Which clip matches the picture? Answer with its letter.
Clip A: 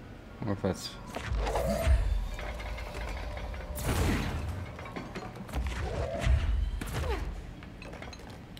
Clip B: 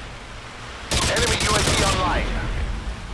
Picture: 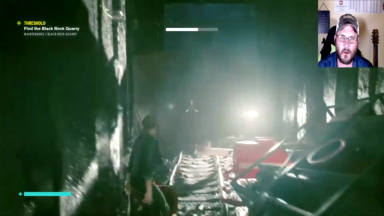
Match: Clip A